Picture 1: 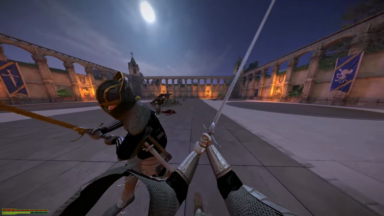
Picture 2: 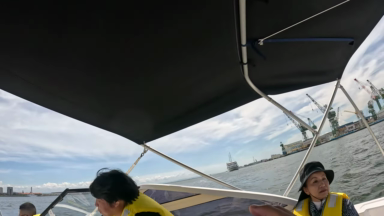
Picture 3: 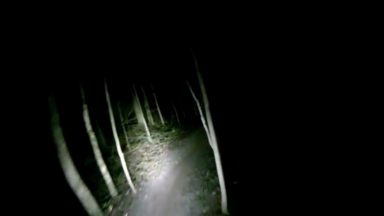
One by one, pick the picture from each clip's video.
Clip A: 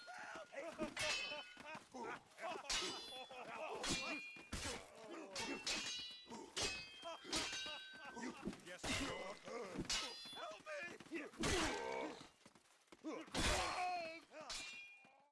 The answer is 1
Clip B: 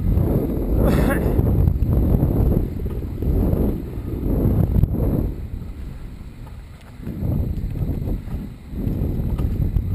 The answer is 3